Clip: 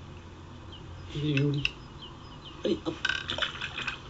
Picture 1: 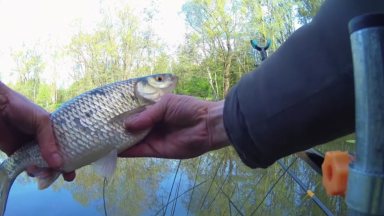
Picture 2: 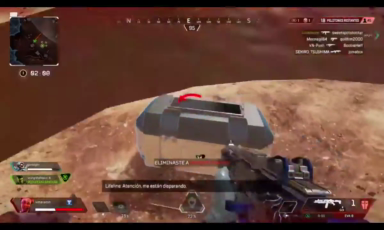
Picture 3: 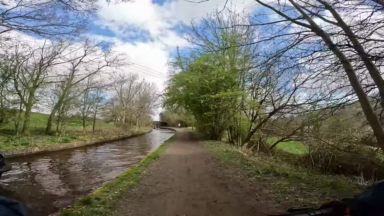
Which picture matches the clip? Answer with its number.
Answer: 1